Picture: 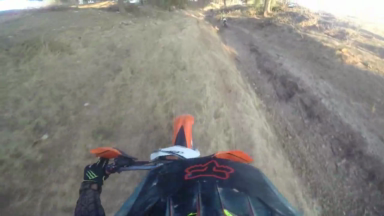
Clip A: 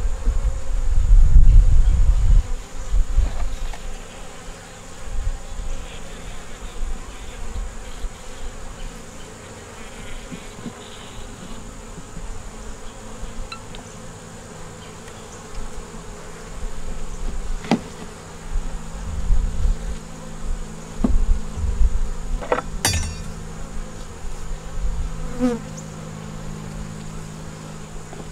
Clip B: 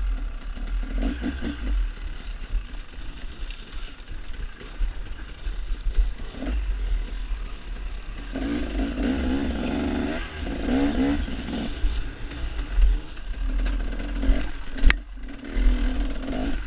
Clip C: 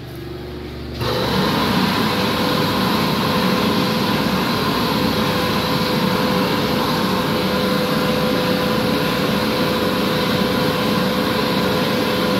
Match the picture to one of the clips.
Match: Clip B